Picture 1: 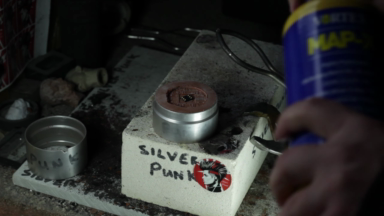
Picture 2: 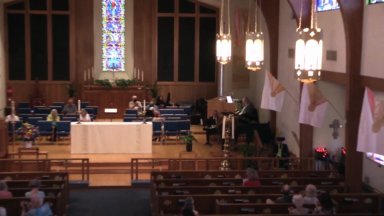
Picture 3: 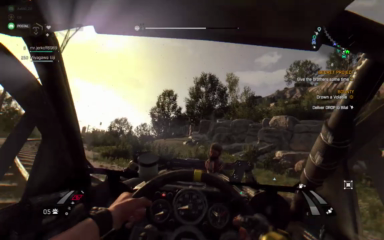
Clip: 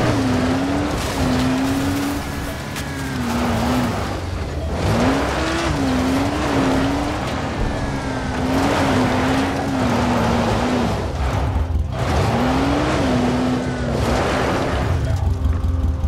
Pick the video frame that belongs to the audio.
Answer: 3